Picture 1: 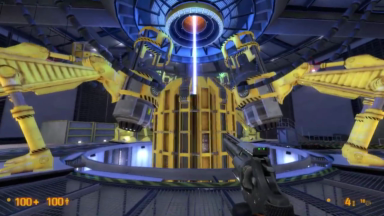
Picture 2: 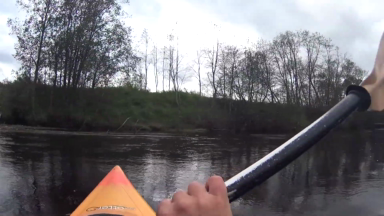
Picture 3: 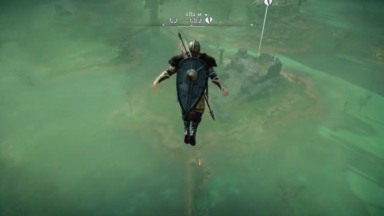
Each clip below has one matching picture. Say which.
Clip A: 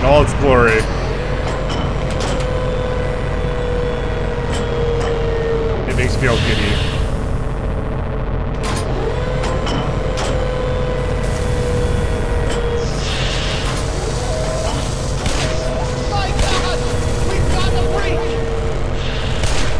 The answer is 1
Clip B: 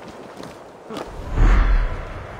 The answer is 3